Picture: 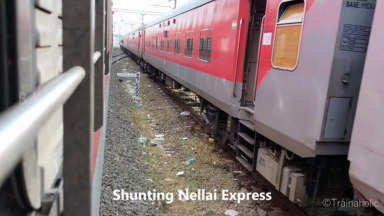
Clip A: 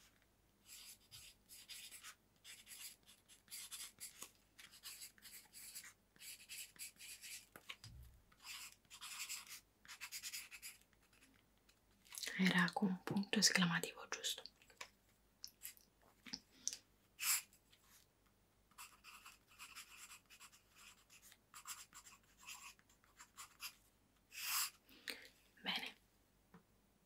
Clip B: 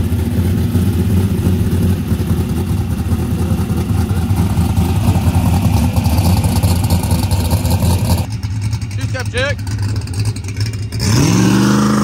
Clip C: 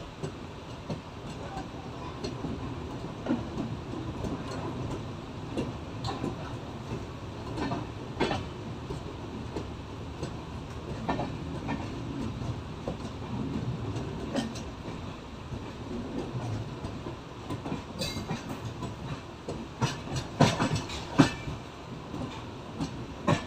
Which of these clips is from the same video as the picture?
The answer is C